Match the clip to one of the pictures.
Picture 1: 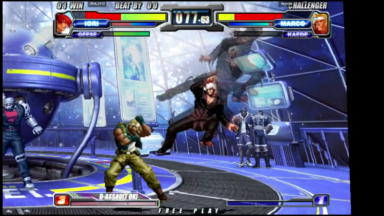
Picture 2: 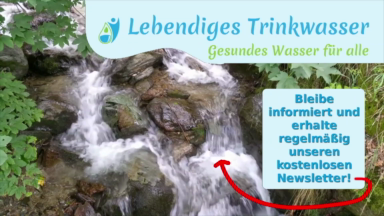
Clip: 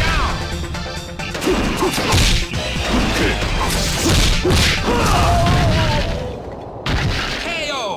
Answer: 1